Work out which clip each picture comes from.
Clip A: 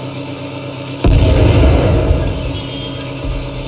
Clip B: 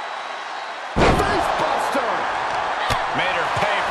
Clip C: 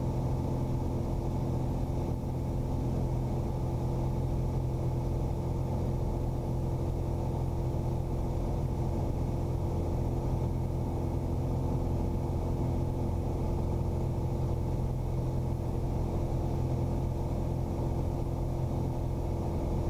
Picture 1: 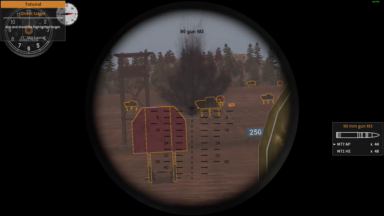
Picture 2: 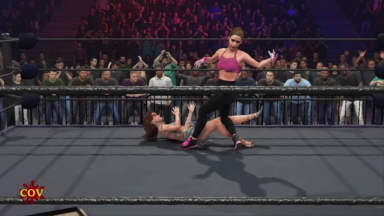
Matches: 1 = A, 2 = B